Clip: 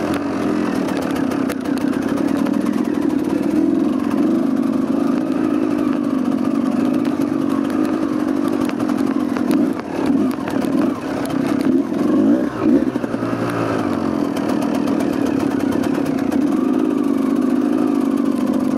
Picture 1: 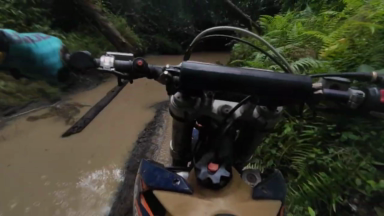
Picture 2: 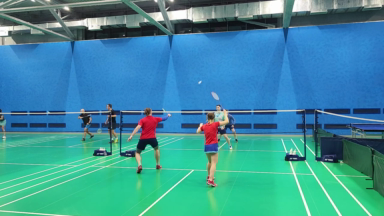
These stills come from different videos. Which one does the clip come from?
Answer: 1